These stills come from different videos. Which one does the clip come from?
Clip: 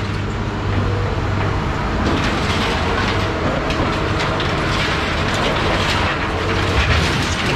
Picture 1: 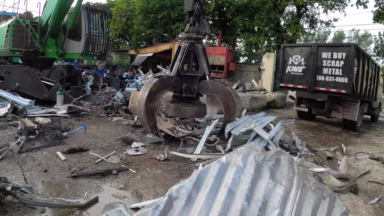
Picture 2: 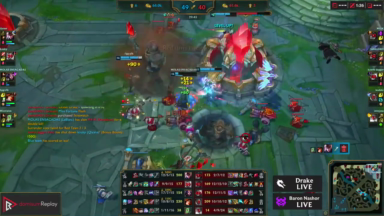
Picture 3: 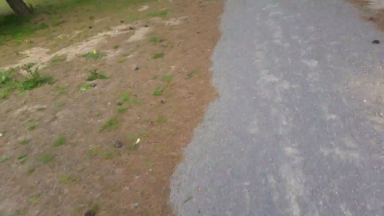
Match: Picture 1